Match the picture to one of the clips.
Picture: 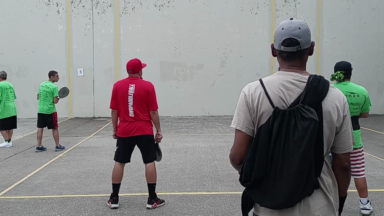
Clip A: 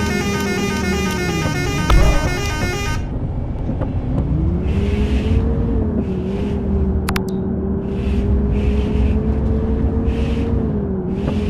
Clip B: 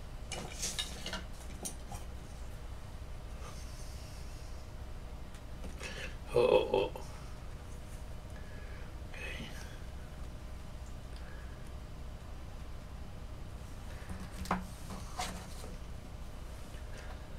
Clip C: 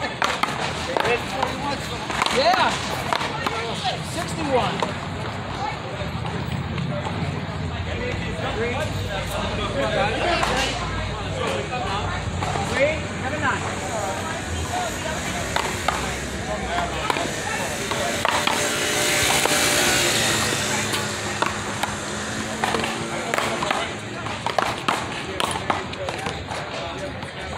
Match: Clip C